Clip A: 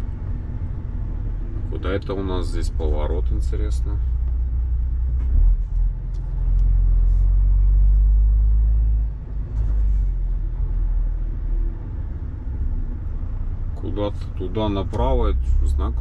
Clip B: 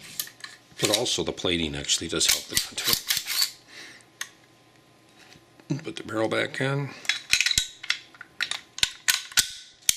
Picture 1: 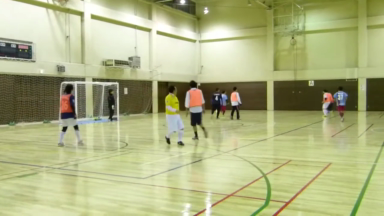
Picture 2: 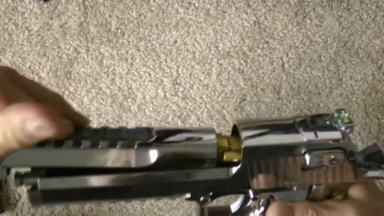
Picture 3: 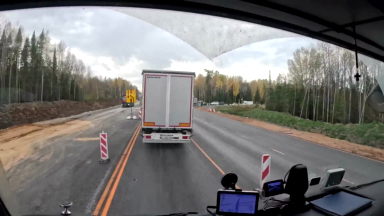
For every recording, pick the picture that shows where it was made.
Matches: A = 3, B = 2